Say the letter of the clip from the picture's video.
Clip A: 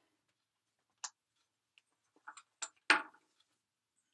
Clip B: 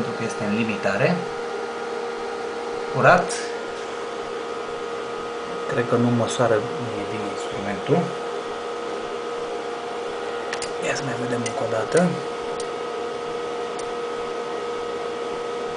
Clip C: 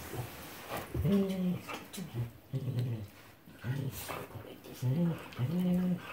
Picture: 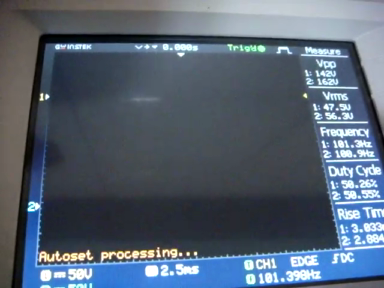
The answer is B